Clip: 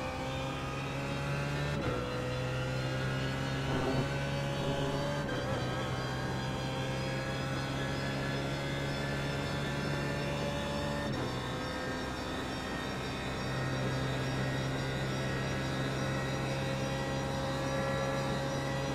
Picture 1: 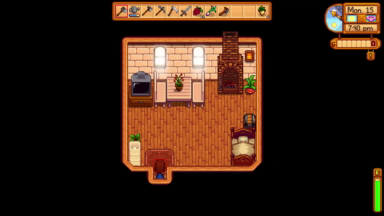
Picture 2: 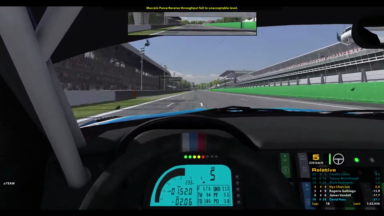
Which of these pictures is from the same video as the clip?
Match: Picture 2